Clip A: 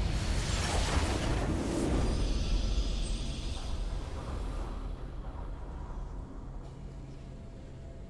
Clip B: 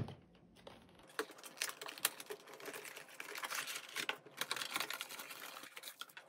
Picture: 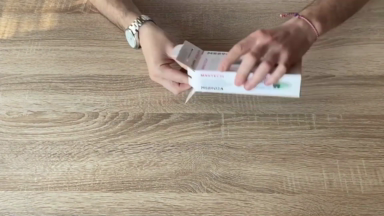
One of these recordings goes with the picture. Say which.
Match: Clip B